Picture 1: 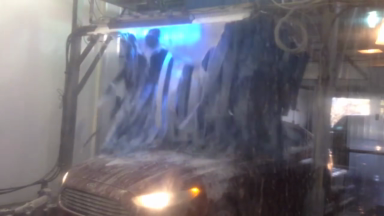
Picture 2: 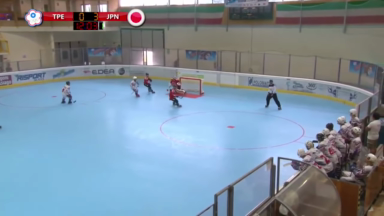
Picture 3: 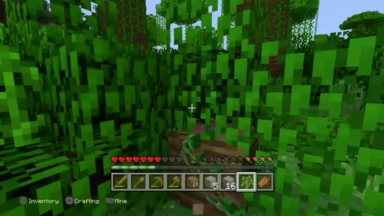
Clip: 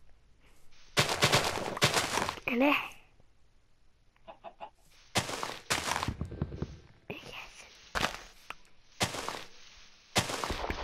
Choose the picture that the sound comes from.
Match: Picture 3